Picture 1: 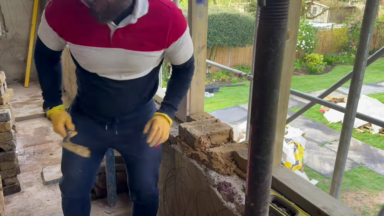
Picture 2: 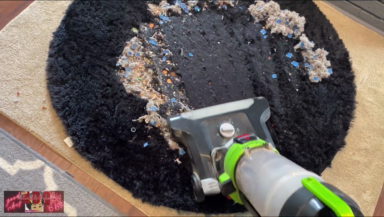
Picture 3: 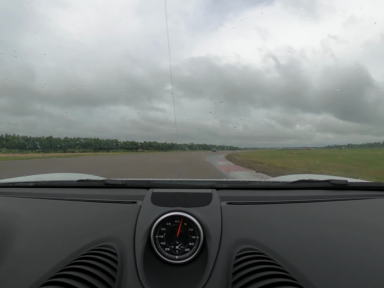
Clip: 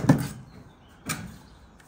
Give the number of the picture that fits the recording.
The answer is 1